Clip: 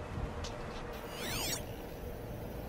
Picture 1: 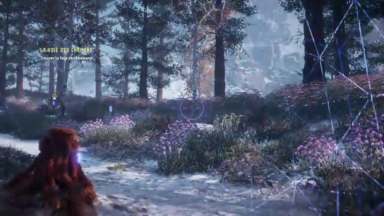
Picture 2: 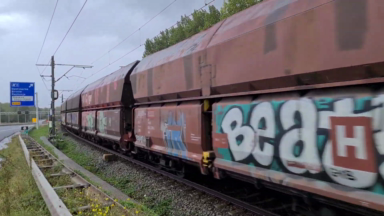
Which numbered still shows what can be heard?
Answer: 1